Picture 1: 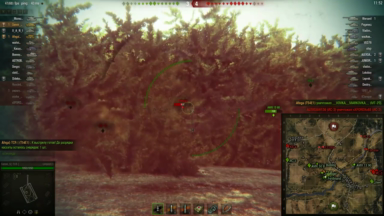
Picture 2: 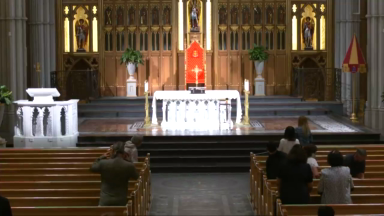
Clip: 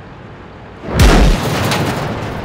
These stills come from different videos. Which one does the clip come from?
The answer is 1